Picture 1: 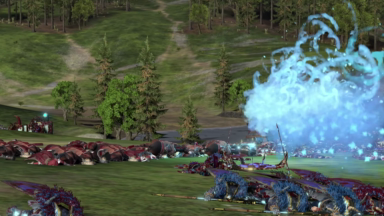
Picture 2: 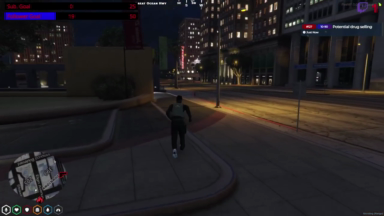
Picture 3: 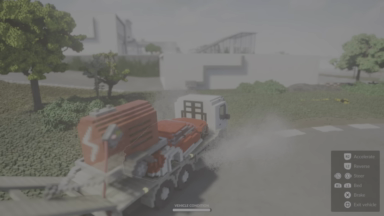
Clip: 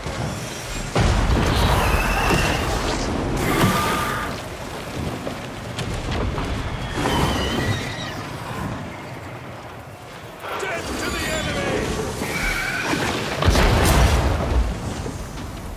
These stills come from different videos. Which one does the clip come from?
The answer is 1